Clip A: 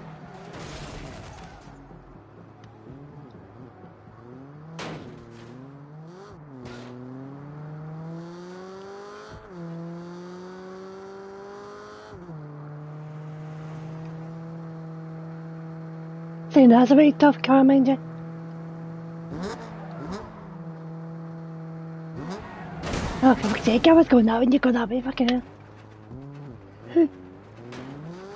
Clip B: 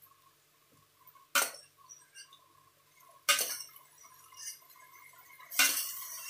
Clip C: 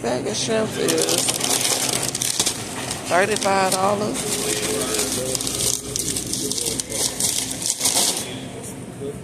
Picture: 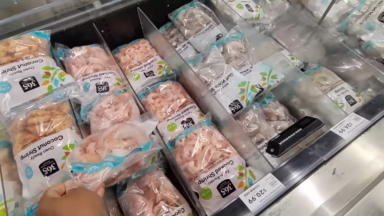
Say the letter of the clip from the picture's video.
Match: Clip C